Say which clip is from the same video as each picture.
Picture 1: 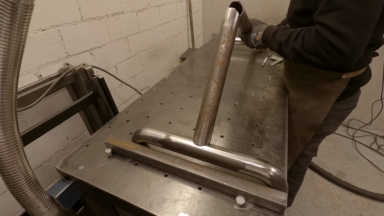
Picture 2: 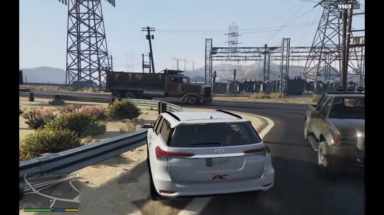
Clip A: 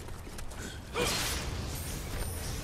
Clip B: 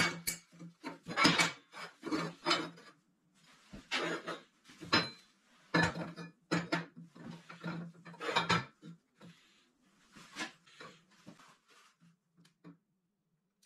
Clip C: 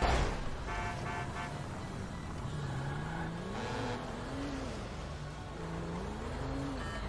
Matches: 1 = B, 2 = C